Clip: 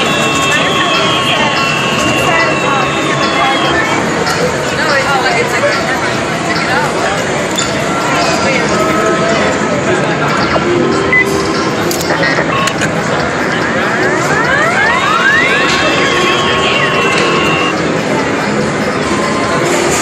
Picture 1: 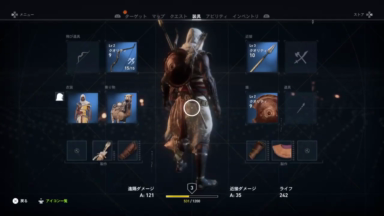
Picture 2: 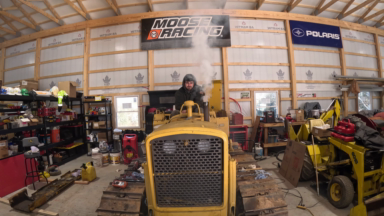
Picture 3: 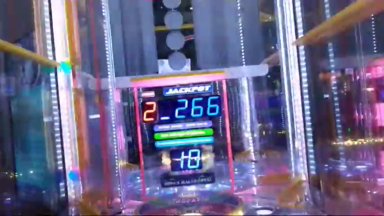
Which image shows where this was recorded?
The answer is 3